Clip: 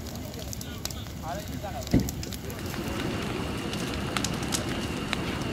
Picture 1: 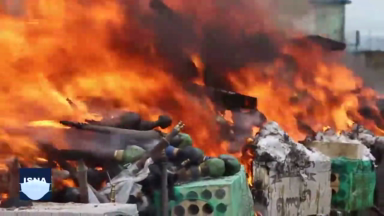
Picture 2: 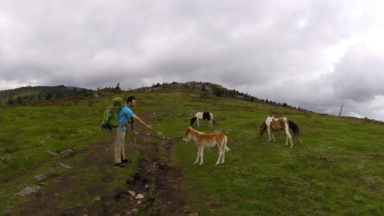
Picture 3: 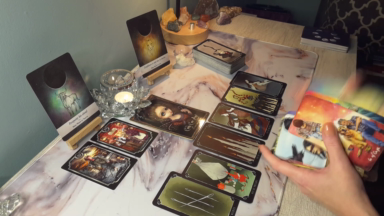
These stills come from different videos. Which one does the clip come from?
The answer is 1